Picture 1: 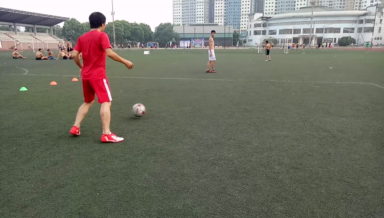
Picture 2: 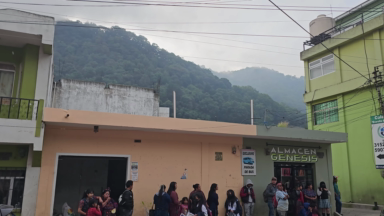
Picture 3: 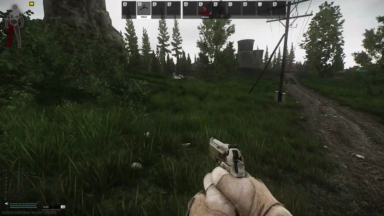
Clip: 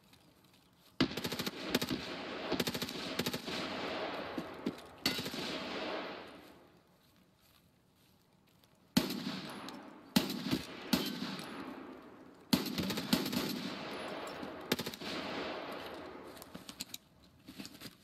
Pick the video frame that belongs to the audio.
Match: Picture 3